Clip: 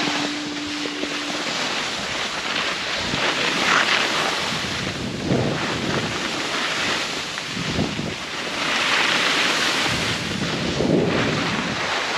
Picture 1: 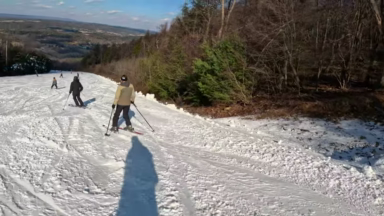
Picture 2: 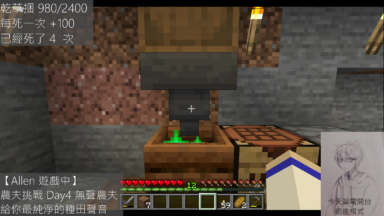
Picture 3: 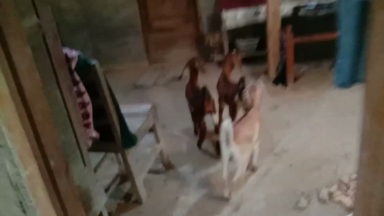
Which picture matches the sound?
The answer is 1